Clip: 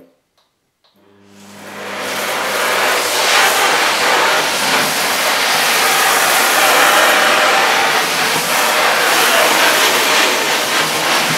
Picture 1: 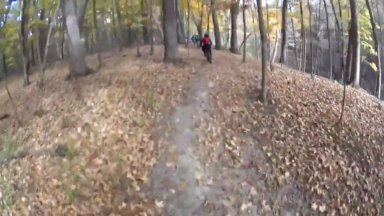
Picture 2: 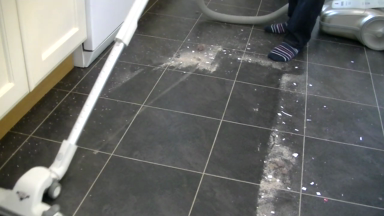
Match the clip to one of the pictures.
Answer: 2